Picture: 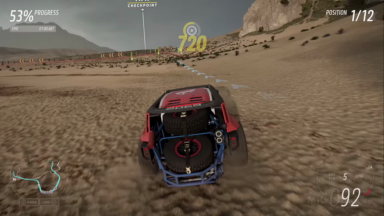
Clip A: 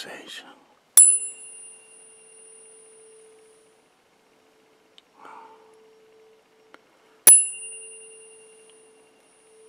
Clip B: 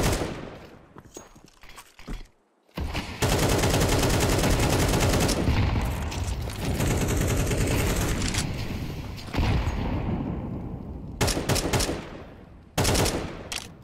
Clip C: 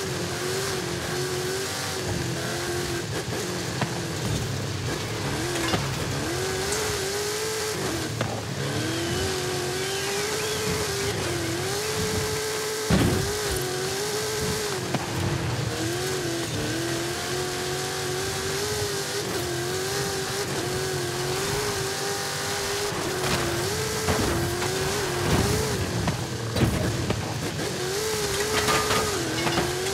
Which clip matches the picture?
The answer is C